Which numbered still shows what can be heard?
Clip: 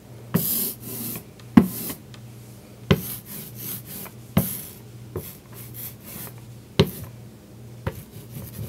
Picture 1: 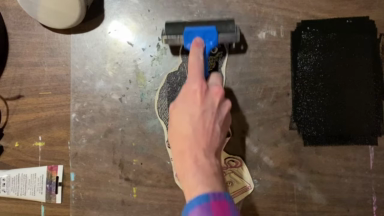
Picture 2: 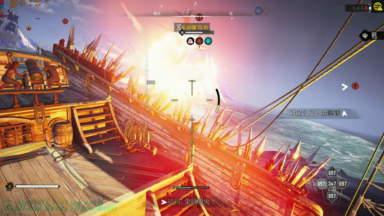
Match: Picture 1